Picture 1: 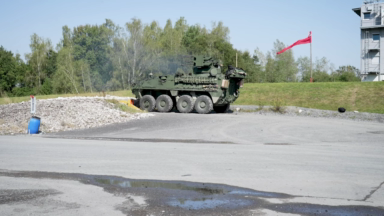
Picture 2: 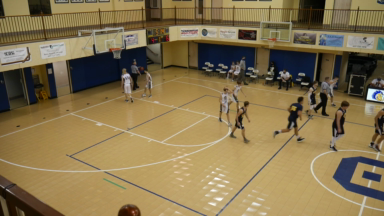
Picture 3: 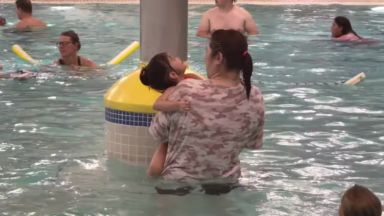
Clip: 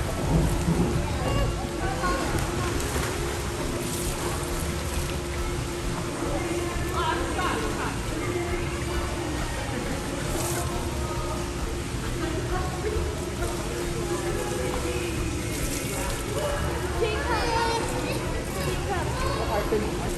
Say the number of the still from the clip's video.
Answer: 3